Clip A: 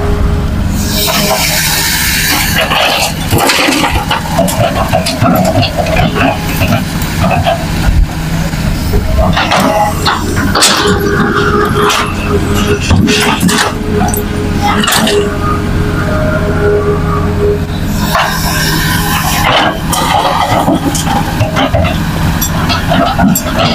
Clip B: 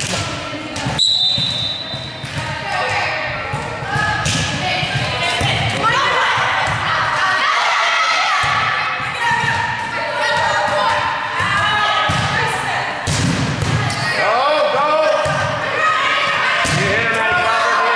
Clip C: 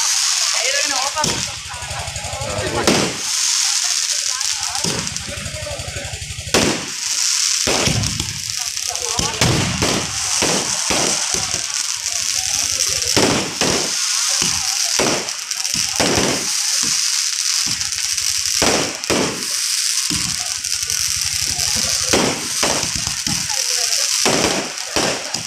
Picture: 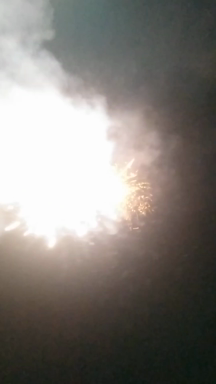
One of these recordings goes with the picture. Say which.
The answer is C